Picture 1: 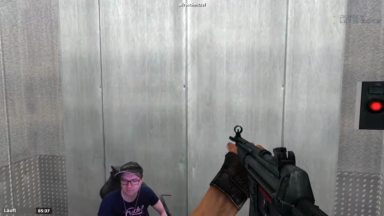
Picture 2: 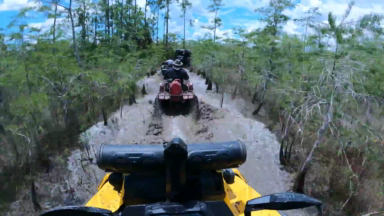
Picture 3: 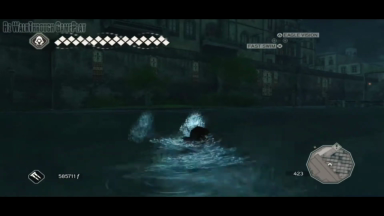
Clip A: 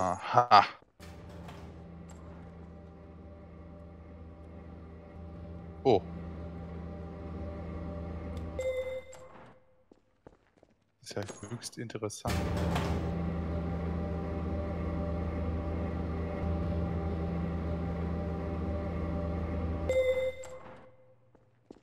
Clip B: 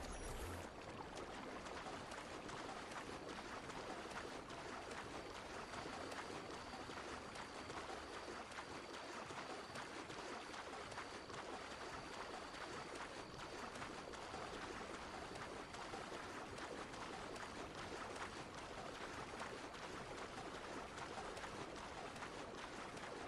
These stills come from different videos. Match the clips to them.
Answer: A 1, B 3